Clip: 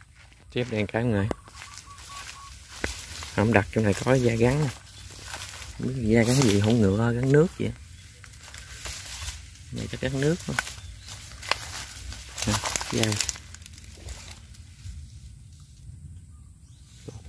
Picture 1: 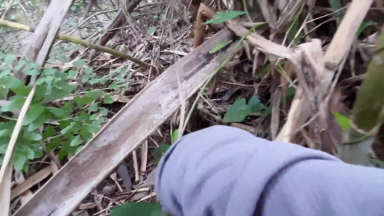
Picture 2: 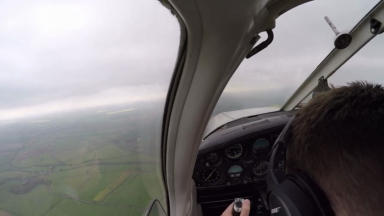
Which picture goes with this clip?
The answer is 1